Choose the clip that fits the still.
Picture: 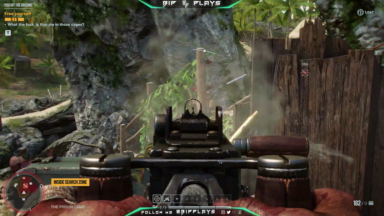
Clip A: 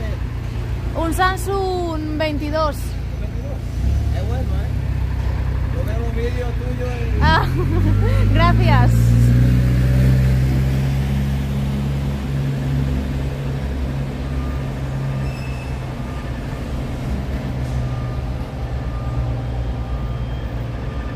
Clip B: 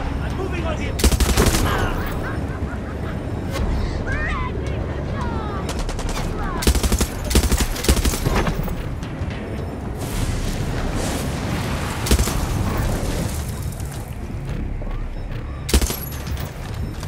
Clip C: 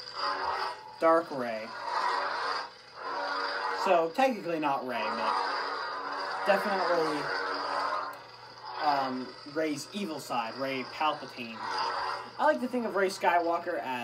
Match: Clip B